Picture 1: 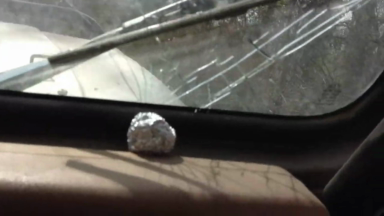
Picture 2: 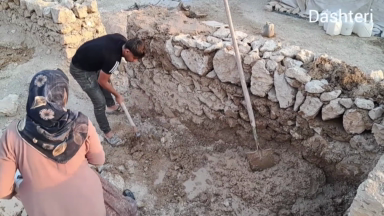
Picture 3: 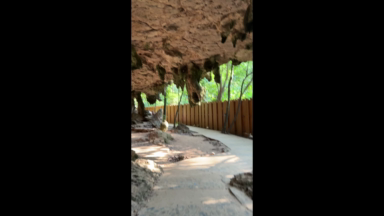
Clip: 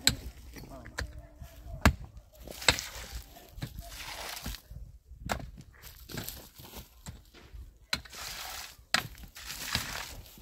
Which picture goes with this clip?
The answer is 2